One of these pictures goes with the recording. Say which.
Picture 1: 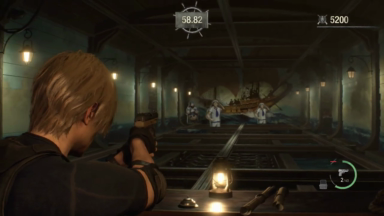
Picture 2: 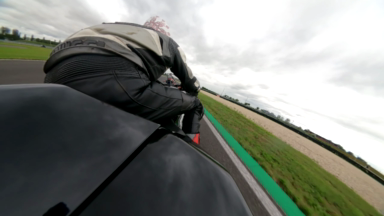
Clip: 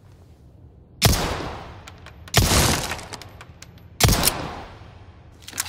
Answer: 1